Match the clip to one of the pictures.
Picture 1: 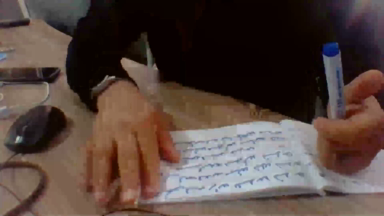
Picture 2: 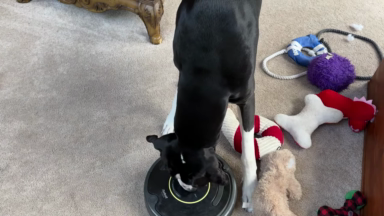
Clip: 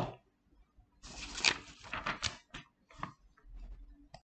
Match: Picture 1